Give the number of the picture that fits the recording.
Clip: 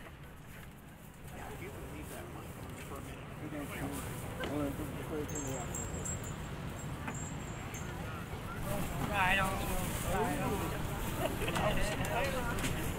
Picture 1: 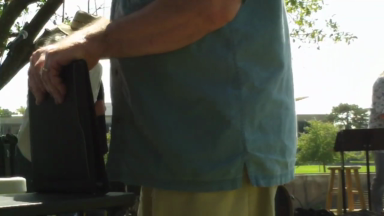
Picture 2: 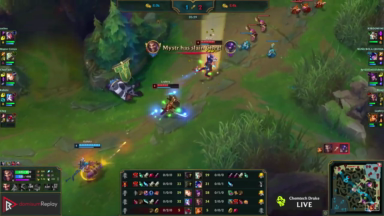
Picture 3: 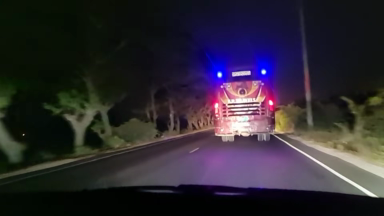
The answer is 1